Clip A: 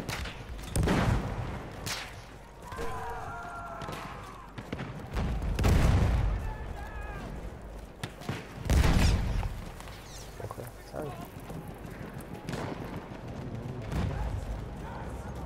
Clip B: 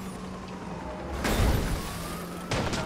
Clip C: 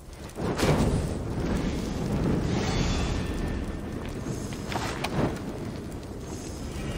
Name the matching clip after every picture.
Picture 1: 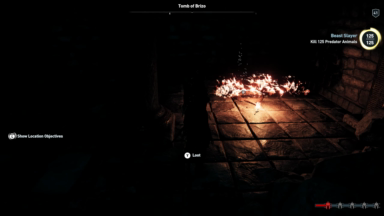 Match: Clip C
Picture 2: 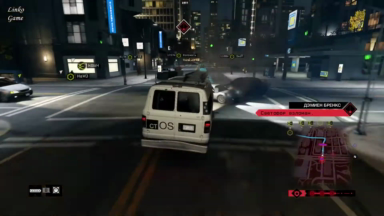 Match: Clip B